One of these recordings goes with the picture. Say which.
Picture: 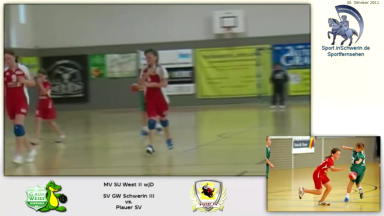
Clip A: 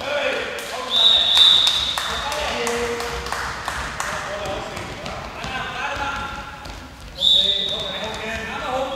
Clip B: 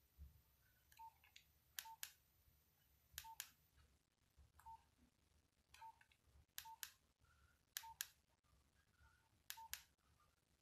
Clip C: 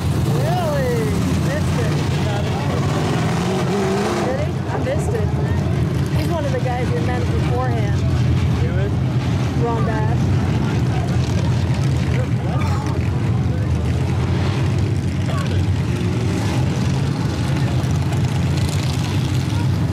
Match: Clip A